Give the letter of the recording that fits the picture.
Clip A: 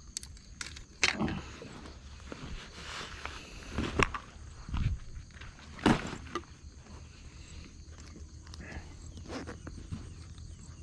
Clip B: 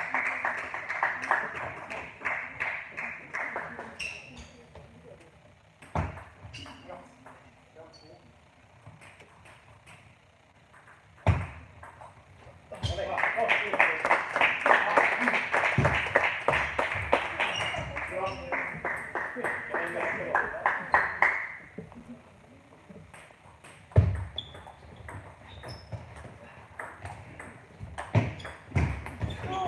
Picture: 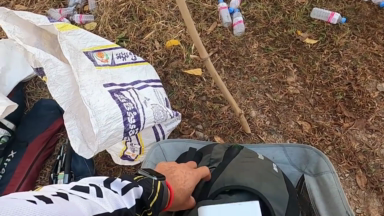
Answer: A